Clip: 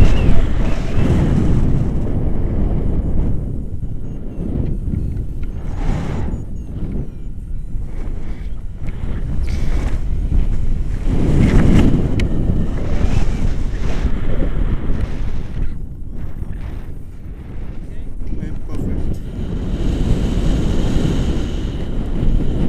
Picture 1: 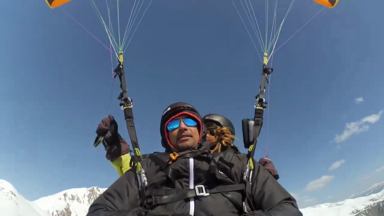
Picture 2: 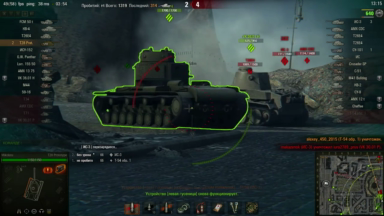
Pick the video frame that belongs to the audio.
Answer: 1